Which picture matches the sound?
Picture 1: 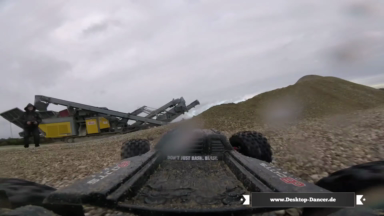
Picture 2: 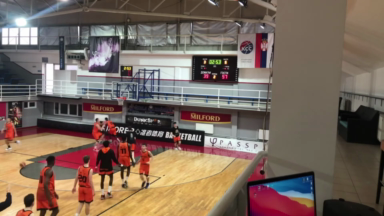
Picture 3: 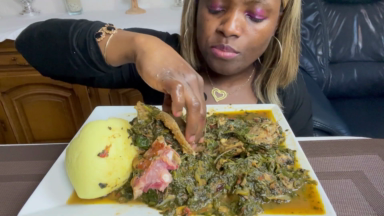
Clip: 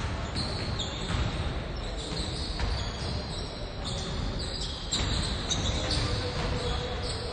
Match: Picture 2